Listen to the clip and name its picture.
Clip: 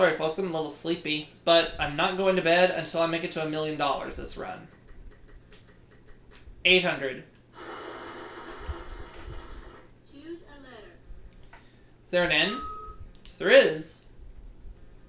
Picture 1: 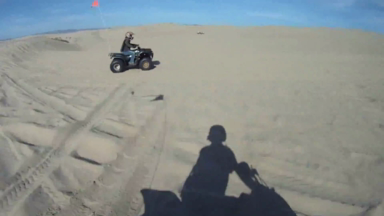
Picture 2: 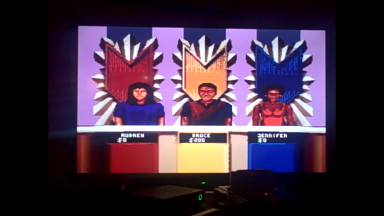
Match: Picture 2